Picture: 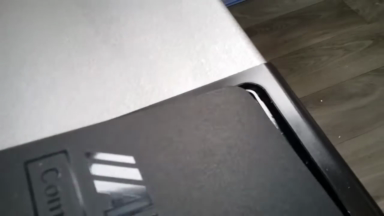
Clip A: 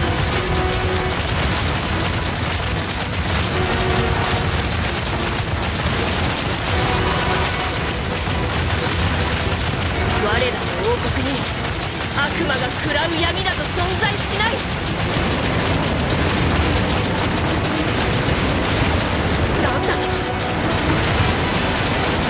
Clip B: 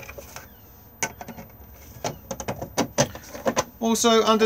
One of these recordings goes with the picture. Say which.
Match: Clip B